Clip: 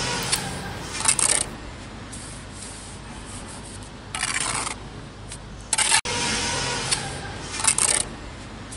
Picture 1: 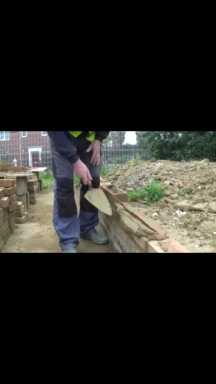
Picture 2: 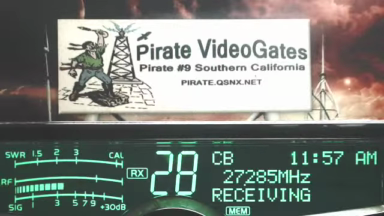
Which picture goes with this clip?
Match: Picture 1